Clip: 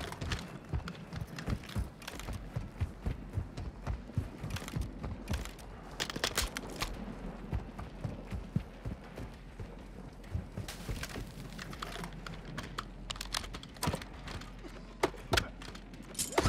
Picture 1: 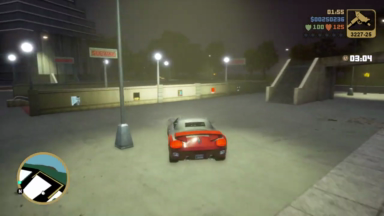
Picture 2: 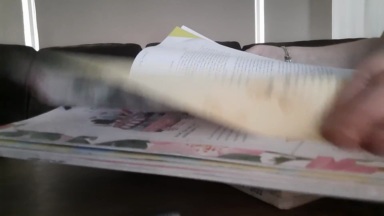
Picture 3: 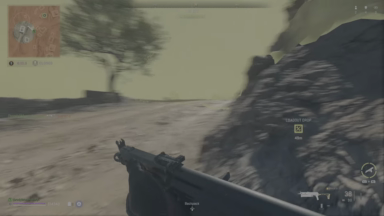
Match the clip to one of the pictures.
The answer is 3